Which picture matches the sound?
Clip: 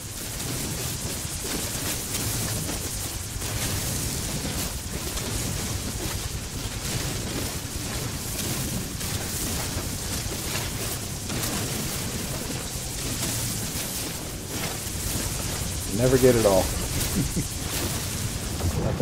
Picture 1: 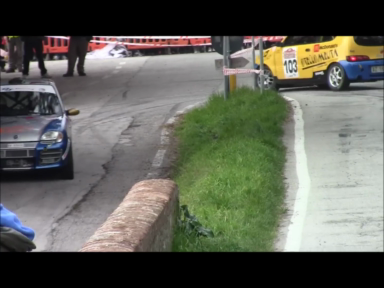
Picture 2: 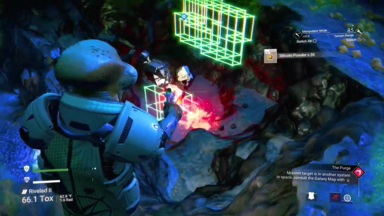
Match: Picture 2